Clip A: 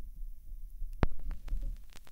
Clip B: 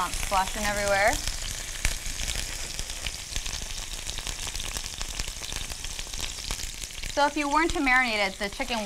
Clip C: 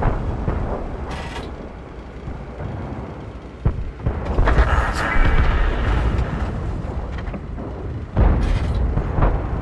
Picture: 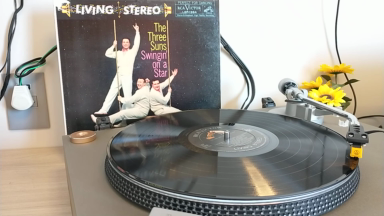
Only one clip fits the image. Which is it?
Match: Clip A